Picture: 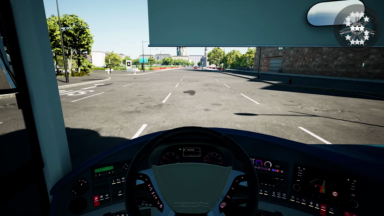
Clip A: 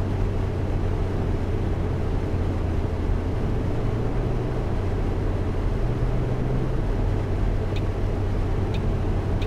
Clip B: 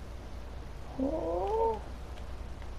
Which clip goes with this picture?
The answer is A